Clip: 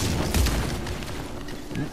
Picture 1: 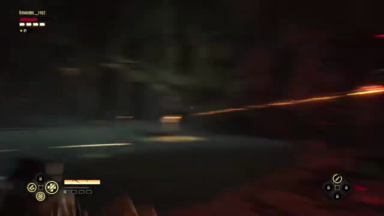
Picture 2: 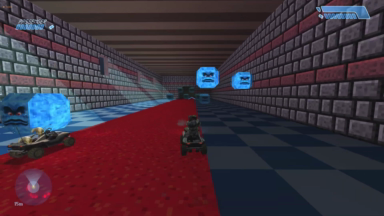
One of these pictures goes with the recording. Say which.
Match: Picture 1